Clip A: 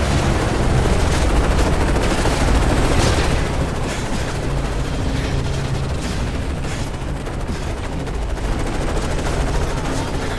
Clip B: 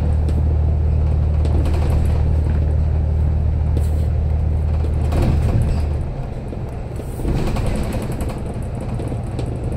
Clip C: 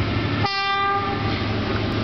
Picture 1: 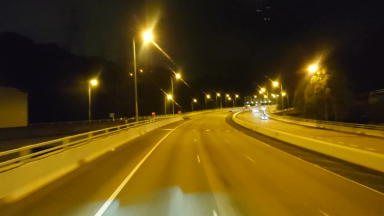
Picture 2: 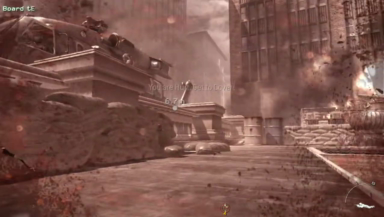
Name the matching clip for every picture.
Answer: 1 B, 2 A